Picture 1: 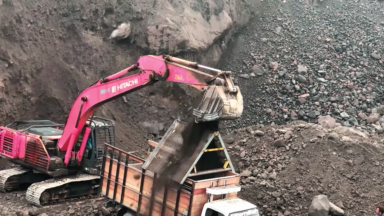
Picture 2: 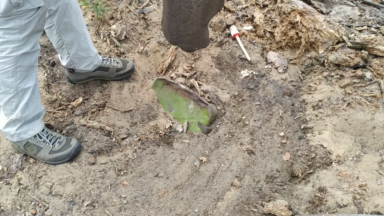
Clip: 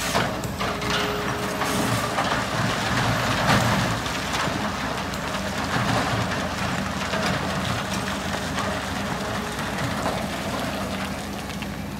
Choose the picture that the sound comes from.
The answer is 1